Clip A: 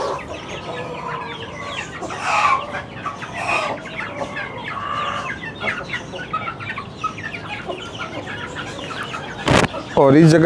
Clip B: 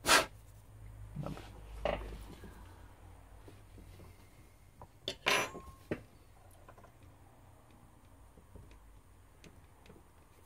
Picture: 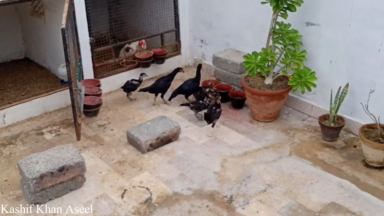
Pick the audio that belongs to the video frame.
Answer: A